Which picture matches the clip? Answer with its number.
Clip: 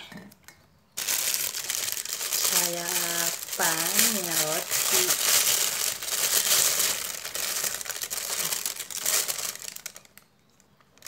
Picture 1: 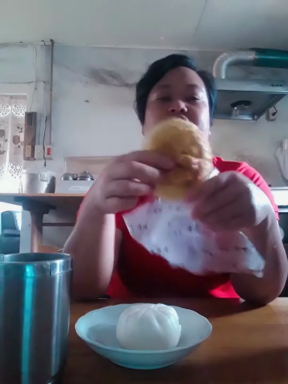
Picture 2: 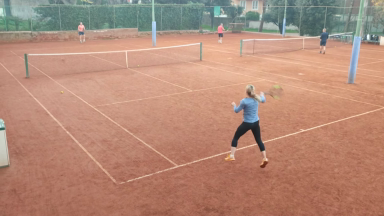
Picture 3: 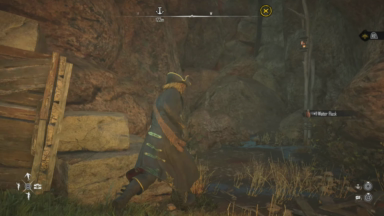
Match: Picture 1